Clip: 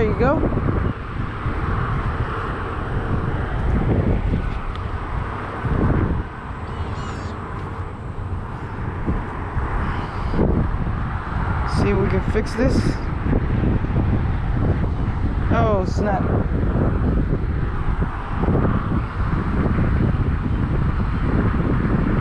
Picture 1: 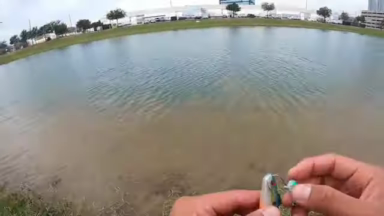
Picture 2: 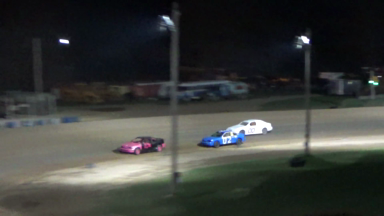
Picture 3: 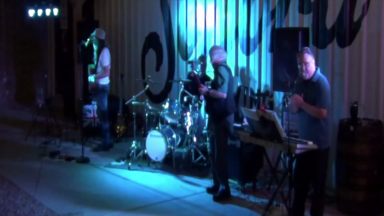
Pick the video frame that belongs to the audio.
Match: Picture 1